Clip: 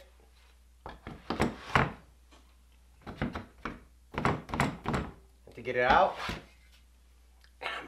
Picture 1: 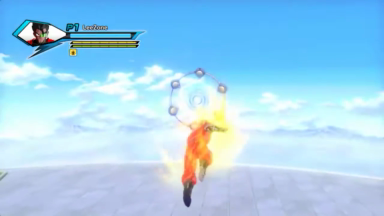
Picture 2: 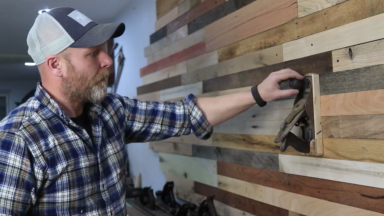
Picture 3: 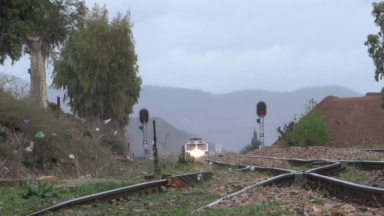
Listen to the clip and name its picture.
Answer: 2